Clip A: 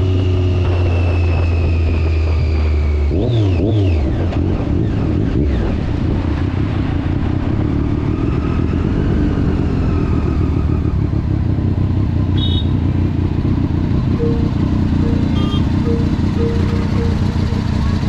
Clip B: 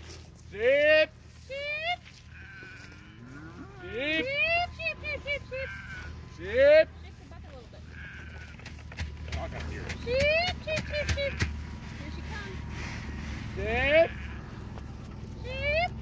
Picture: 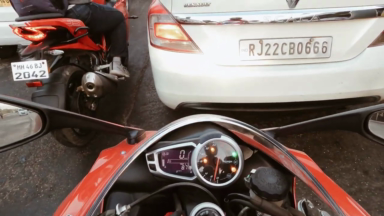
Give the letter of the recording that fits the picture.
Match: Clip A